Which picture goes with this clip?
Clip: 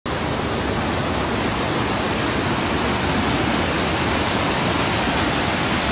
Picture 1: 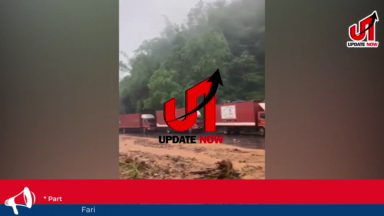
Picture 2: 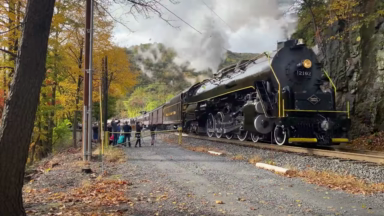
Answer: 1